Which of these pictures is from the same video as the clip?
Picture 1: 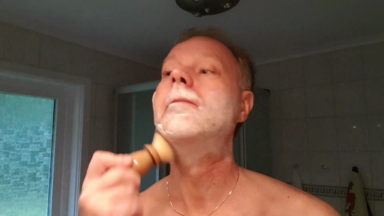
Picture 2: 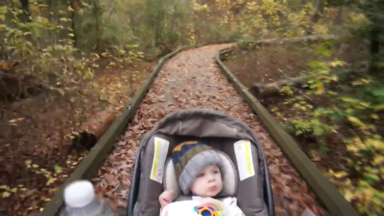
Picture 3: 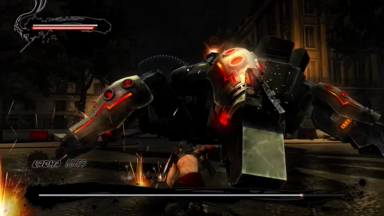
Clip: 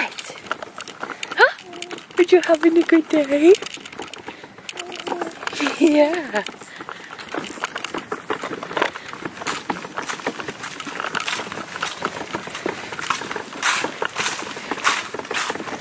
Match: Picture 2